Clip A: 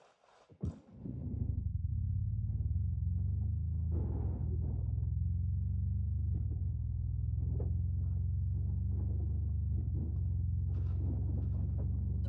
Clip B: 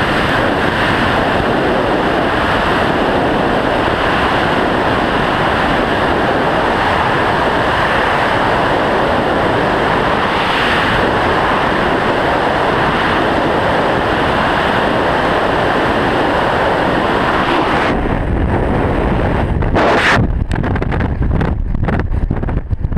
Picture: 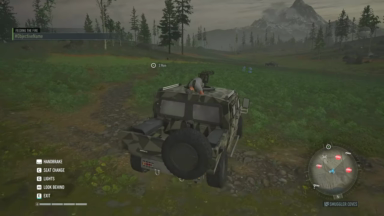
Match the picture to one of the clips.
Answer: A